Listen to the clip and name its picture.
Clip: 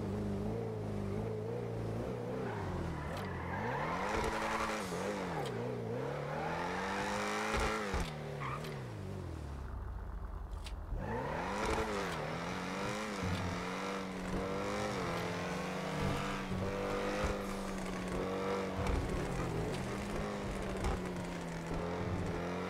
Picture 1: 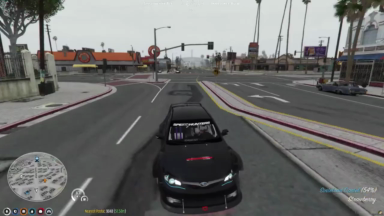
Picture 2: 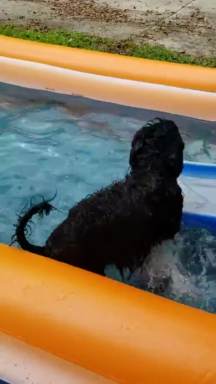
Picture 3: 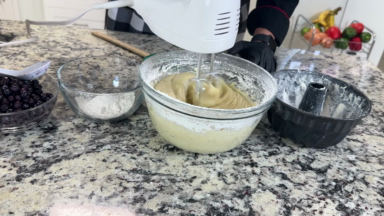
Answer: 1